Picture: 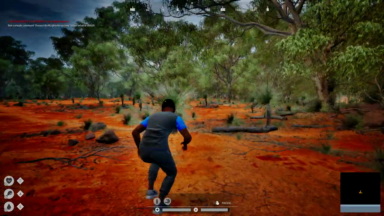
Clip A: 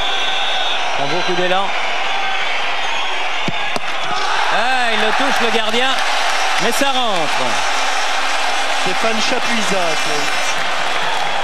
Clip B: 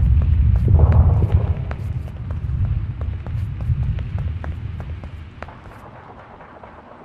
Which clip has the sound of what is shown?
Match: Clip B